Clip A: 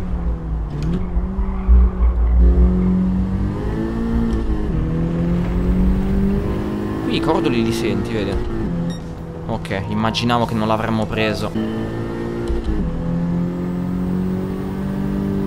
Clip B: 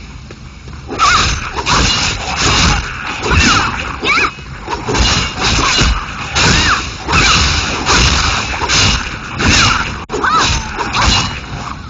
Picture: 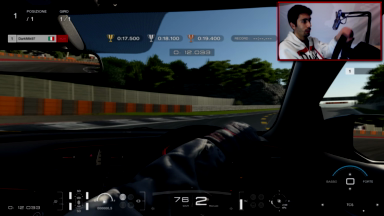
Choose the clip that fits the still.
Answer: A